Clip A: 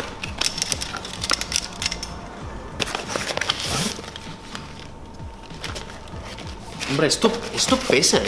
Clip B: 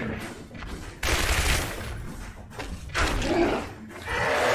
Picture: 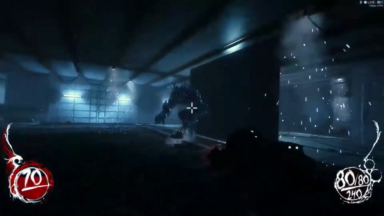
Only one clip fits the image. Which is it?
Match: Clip B